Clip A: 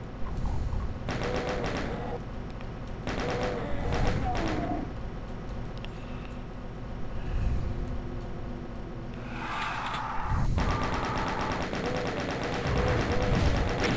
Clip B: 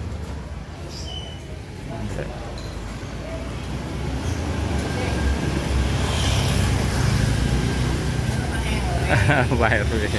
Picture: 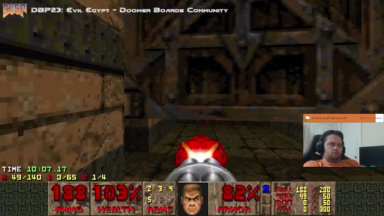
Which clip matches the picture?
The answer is A